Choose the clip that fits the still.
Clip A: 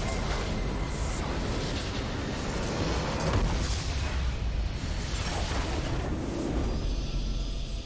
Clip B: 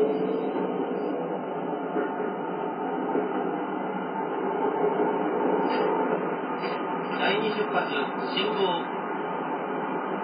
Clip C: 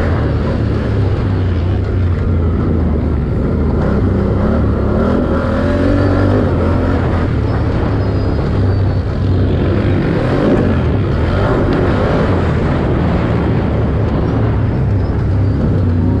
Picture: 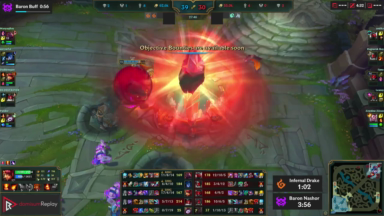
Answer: A